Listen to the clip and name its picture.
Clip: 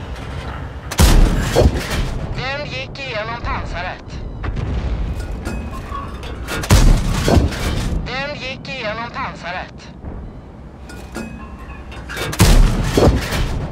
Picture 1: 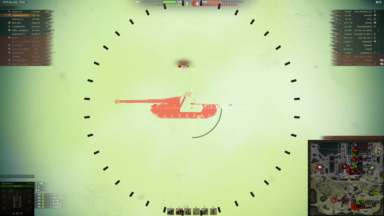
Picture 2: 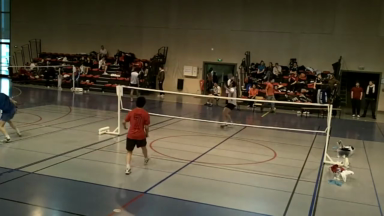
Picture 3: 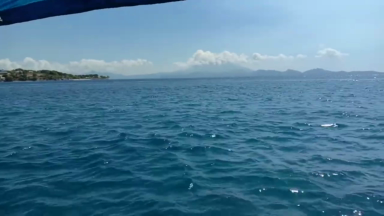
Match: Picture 1